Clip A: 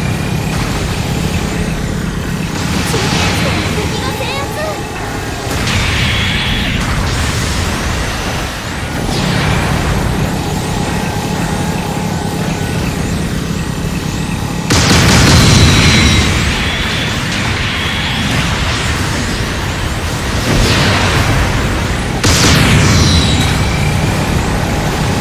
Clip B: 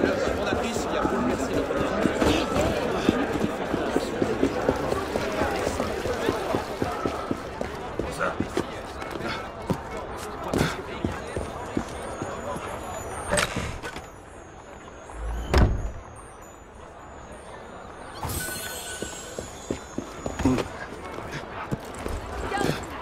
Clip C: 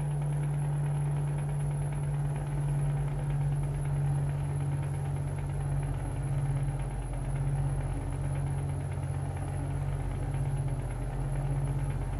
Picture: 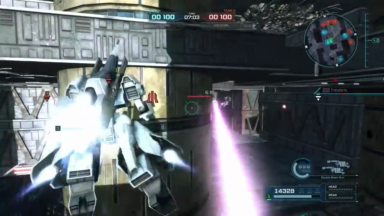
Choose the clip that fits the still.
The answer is A